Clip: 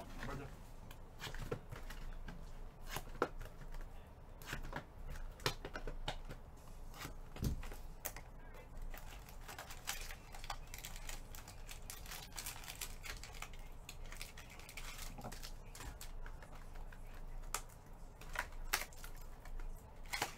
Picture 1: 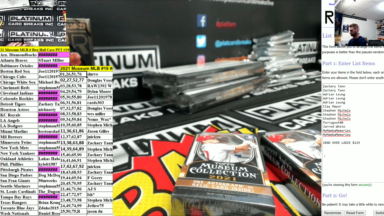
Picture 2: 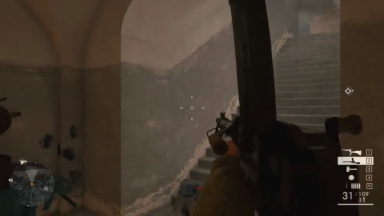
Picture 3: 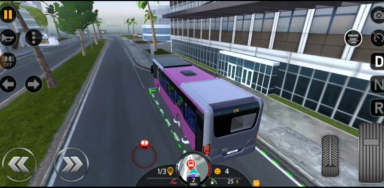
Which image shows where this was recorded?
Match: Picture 1